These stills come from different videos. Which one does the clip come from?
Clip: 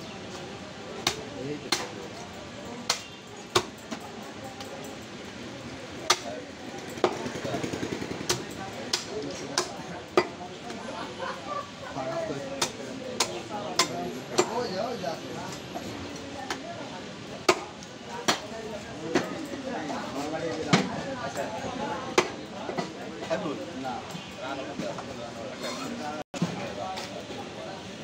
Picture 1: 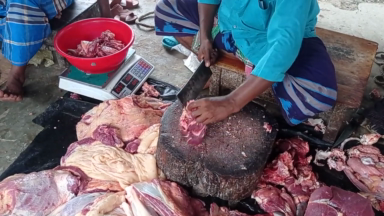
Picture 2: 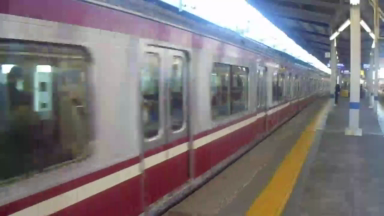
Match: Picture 1